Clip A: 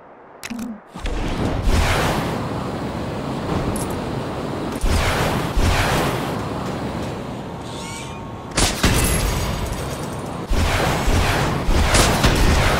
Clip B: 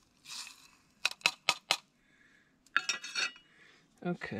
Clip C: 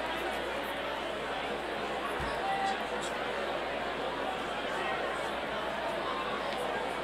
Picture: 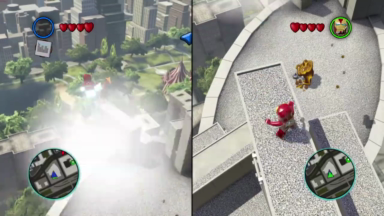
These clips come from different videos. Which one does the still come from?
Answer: A